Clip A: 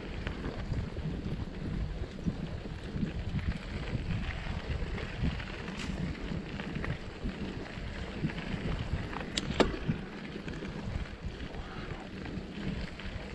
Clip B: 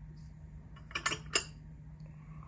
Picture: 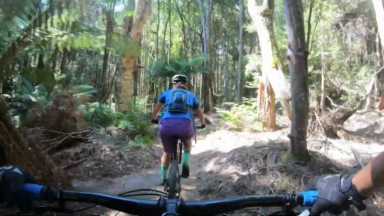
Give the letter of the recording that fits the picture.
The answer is A